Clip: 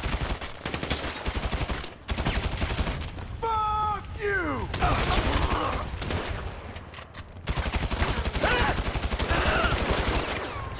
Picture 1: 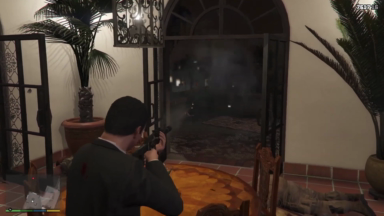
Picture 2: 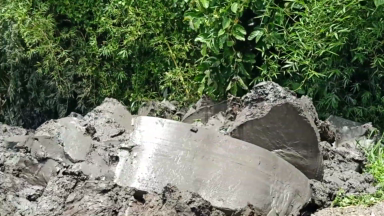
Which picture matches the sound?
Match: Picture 1